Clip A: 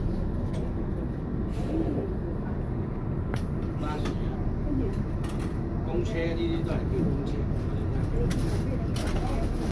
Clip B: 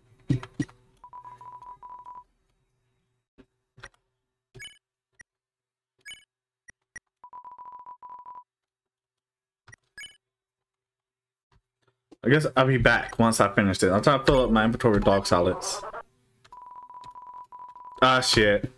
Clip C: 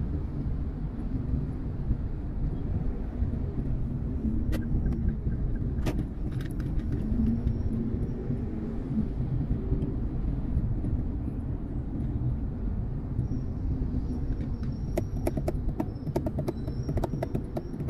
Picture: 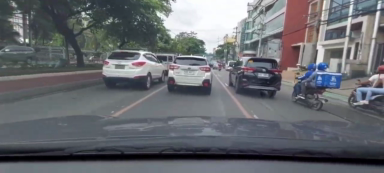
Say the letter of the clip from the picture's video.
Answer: C